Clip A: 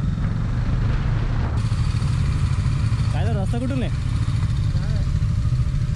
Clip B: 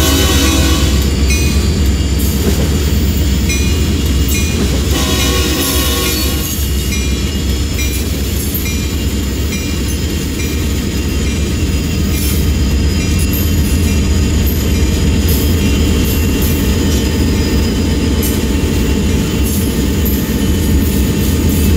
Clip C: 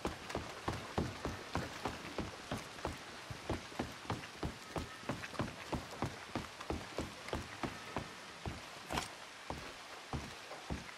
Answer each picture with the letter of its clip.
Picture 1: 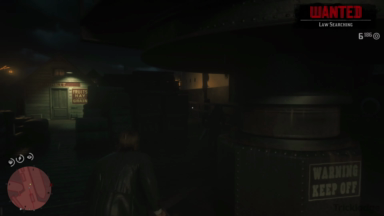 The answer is C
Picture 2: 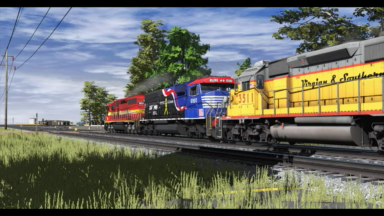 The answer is B